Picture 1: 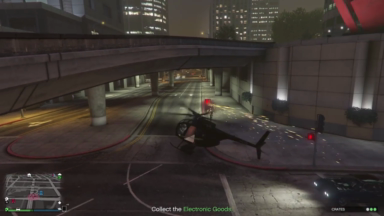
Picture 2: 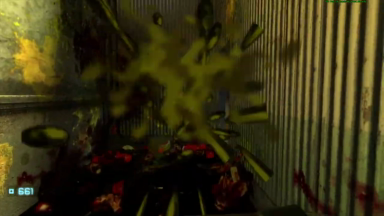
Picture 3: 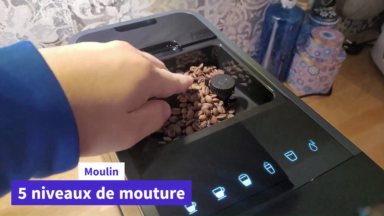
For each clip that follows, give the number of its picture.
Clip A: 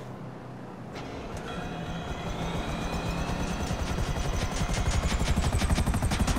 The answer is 1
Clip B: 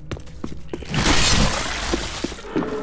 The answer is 2